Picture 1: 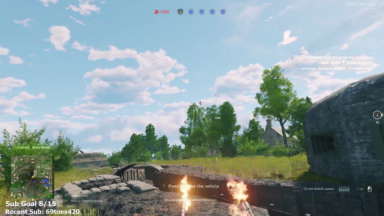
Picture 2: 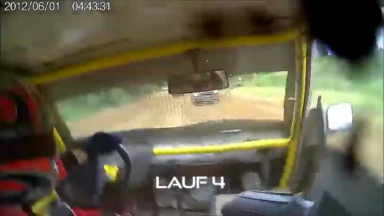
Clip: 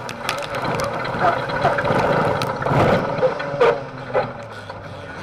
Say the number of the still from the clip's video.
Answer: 2